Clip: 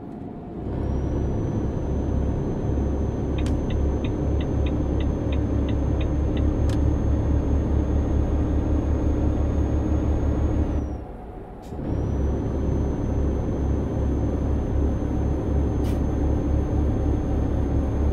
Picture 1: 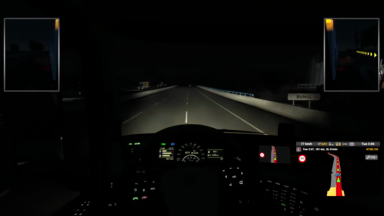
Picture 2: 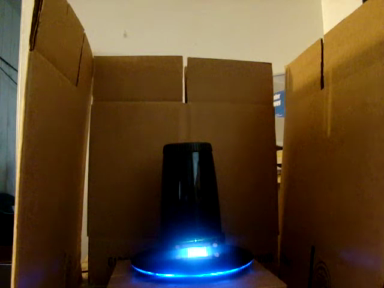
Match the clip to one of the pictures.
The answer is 1